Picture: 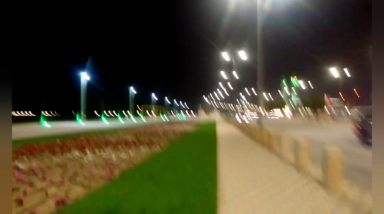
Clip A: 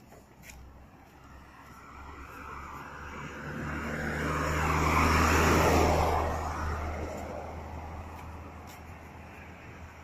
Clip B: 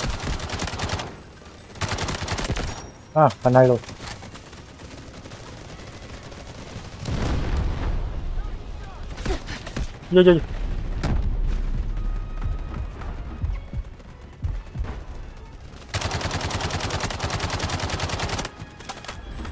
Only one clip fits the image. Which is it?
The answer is A